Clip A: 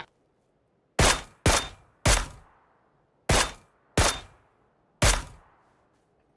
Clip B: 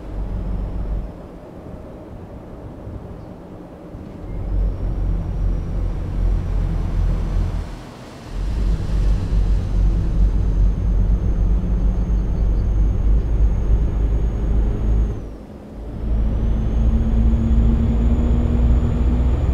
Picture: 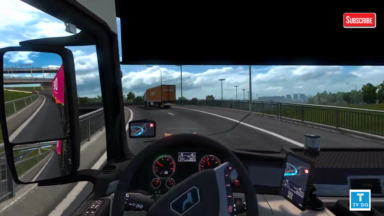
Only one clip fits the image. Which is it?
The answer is B